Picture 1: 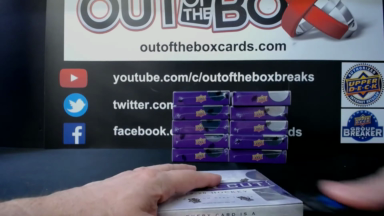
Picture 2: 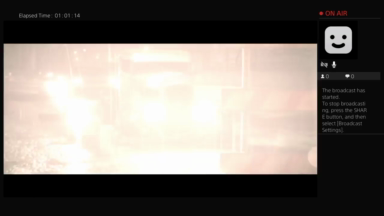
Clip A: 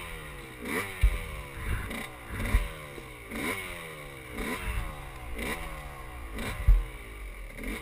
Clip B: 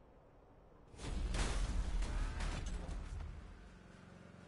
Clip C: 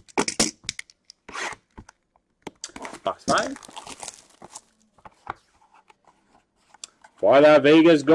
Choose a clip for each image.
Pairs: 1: C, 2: B